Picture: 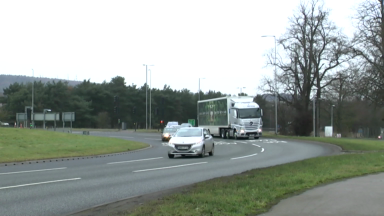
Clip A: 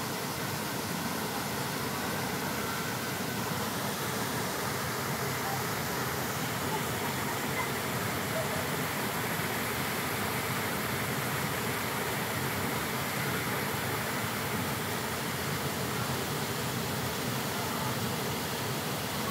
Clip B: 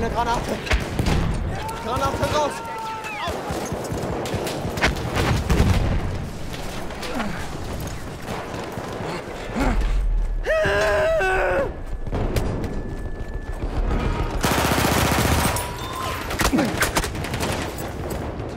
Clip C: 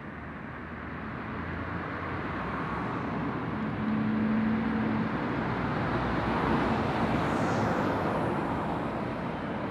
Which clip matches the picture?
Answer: C